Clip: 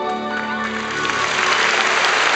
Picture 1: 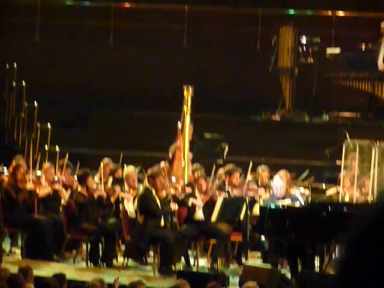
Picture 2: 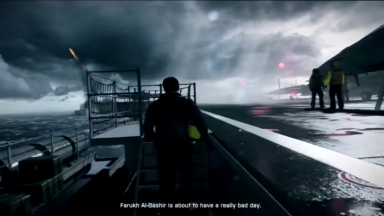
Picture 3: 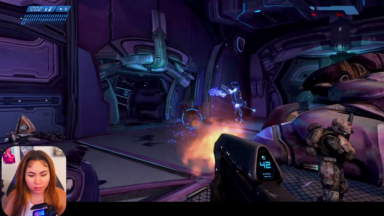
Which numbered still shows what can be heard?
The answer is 1